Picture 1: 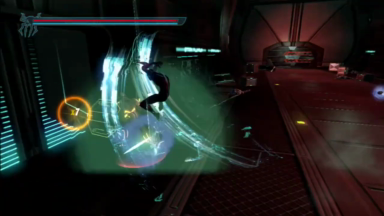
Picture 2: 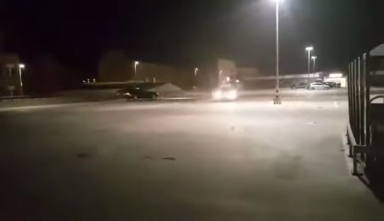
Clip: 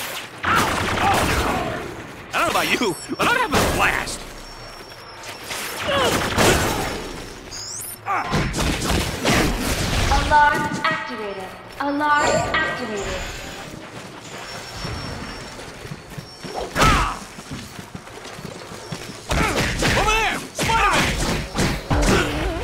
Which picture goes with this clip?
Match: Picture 1